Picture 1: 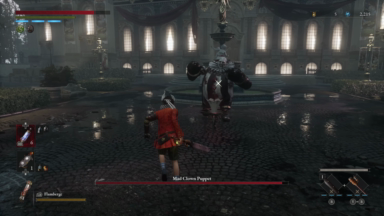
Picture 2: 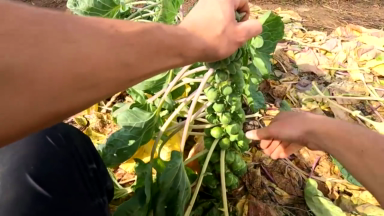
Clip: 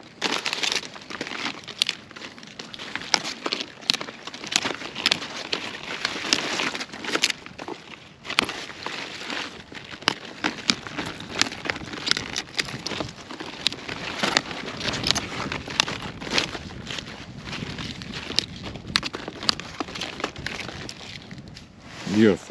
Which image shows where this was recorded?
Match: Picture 2